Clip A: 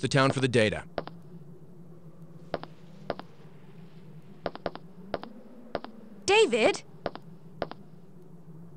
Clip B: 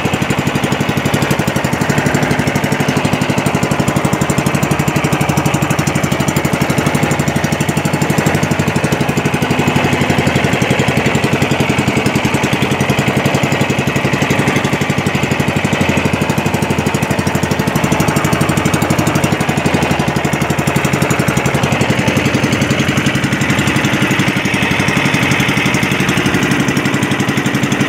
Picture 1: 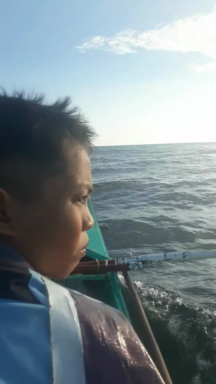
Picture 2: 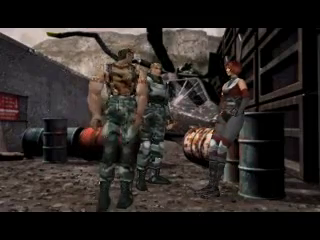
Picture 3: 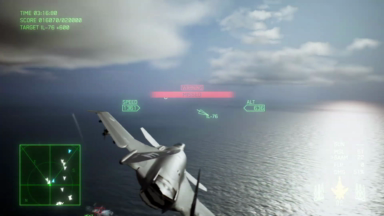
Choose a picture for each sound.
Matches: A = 2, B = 1